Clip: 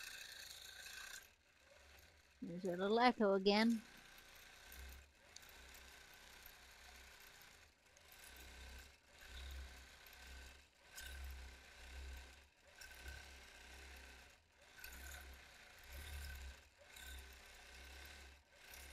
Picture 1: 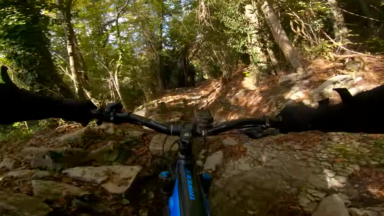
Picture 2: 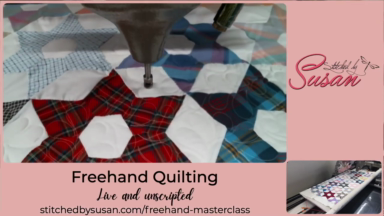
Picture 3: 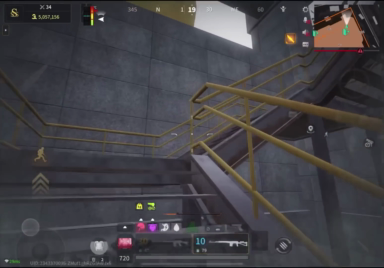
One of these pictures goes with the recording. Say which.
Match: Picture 2